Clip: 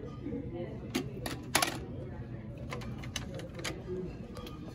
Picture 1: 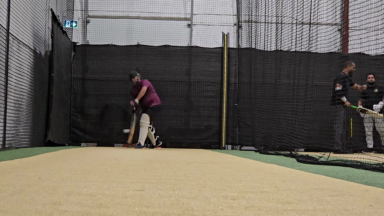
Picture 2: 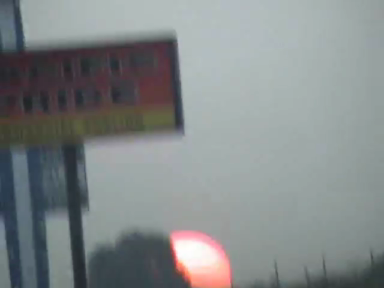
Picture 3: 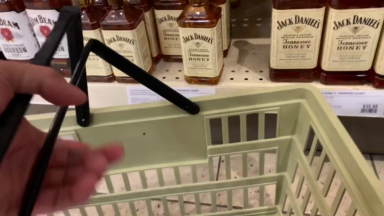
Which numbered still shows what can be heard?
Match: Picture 3